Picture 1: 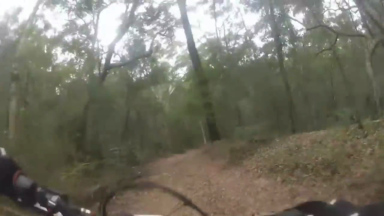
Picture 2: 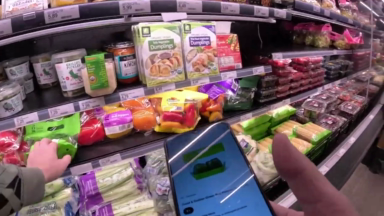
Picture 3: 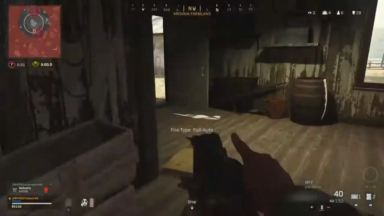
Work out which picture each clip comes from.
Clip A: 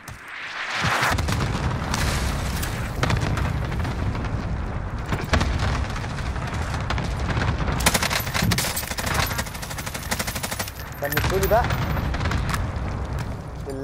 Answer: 3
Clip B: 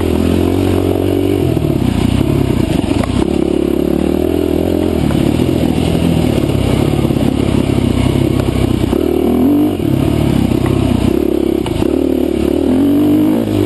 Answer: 1